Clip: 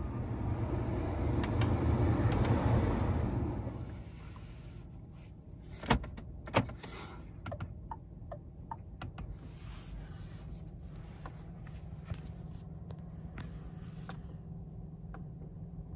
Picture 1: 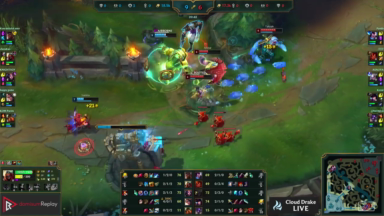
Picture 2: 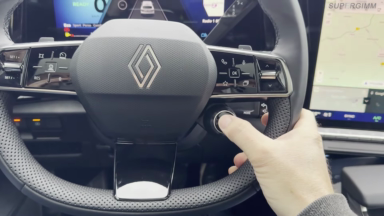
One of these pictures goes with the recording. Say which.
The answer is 2